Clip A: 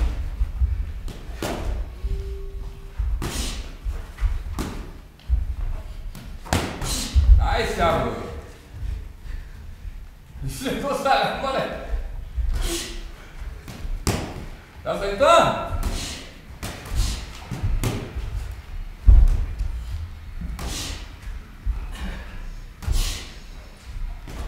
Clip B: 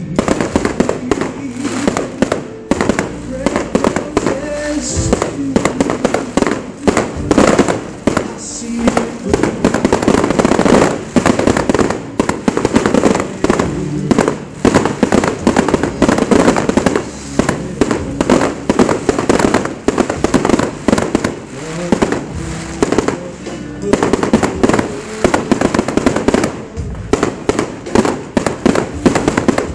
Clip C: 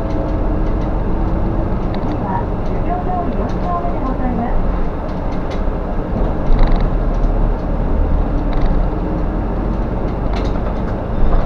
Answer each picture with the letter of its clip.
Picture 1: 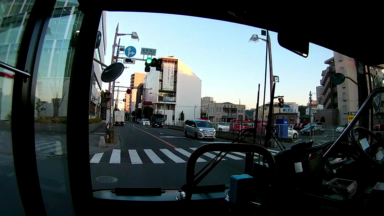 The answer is C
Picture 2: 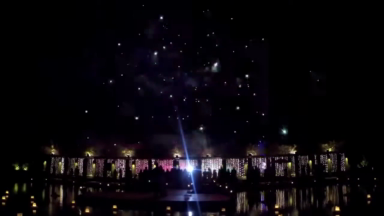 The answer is B